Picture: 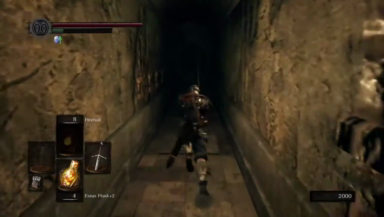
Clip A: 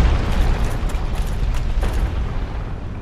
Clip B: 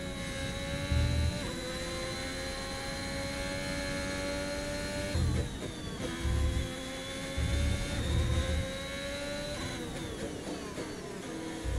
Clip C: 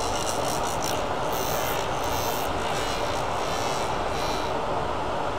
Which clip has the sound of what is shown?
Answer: A